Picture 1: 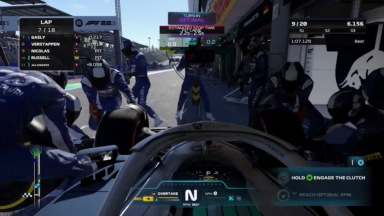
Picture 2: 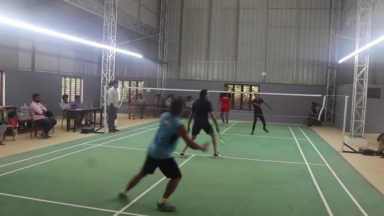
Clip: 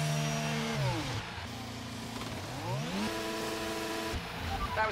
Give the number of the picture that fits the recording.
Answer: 1